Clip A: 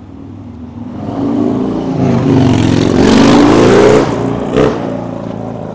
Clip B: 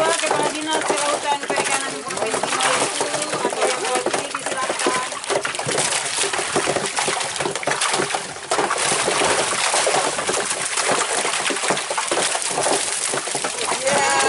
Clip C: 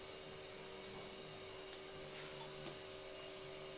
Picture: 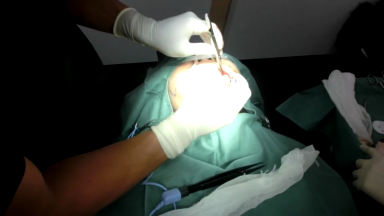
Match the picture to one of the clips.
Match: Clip C